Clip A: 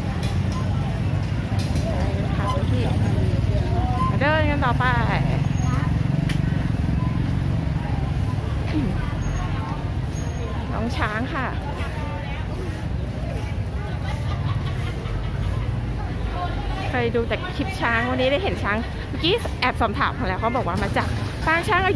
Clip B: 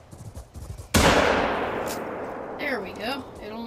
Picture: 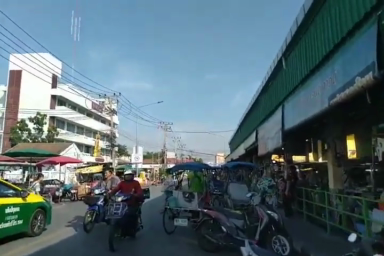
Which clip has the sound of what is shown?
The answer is A